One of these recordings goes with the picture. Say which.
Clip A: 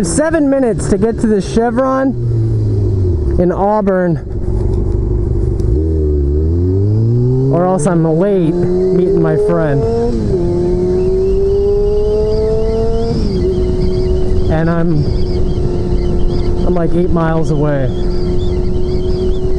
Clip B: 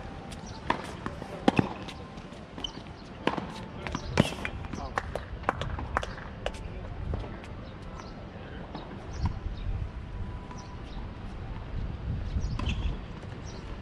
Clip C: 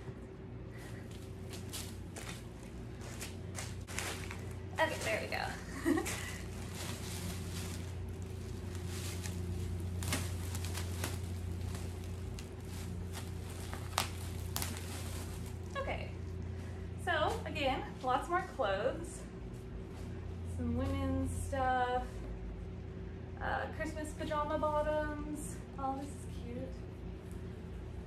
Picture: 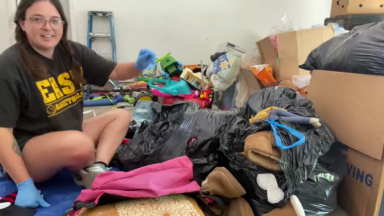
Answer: C